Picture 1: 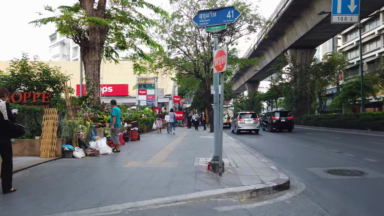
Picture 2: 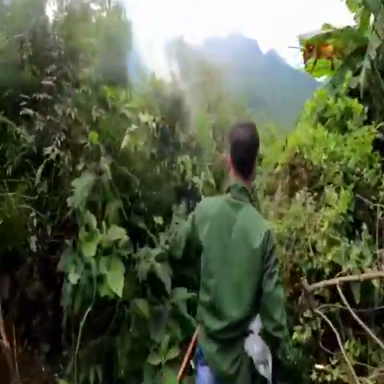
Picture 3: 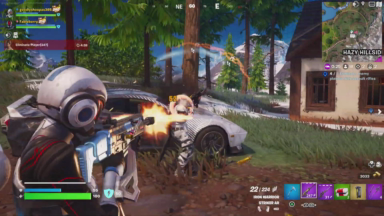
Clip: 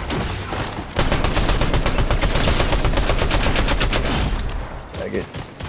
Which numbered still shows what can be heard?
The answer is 3